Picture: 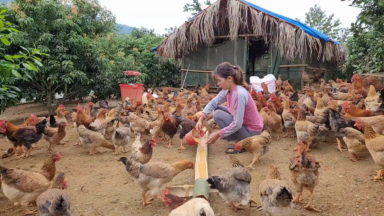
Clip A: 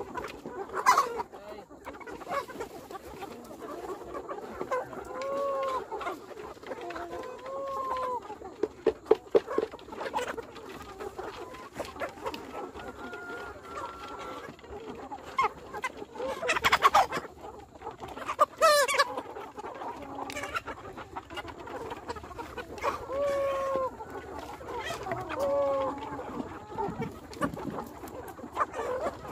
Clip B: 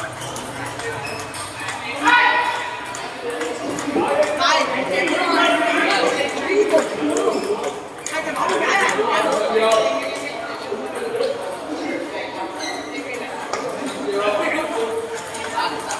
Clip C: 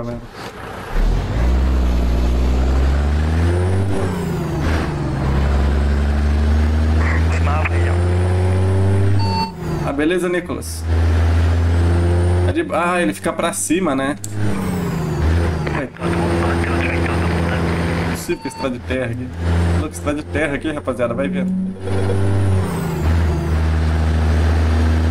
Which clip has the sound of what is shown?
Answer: A